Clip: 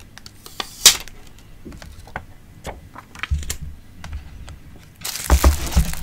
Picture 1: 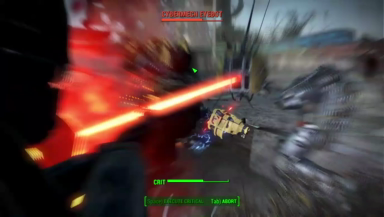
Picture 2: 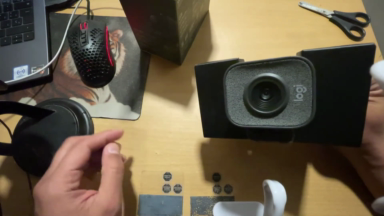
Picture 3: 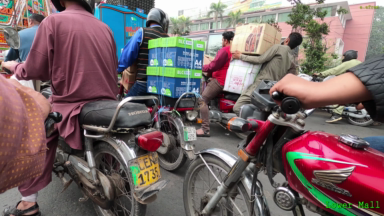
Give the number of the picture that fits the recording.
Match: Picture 2